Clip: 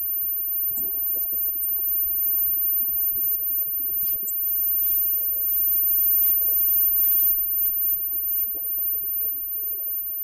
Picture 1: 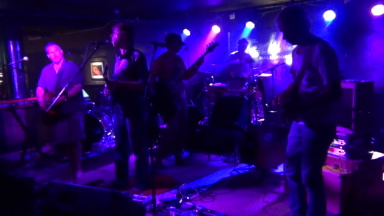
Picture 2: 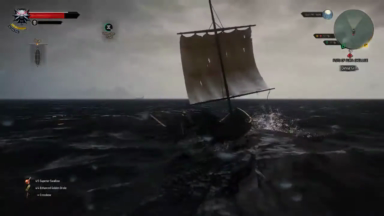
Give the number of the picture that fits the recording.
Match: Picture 1